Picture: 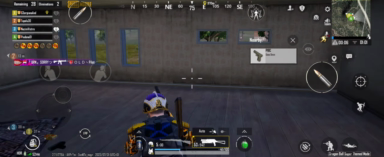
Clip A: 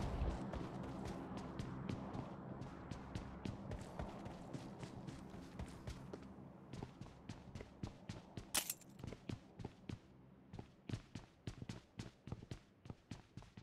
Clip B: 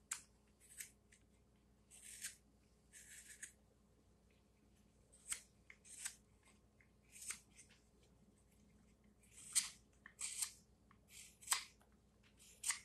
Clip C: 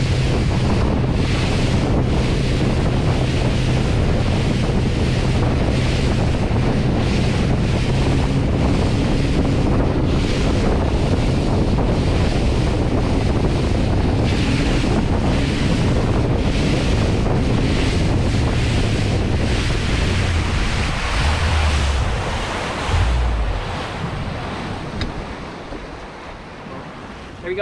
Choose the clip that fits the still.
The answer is A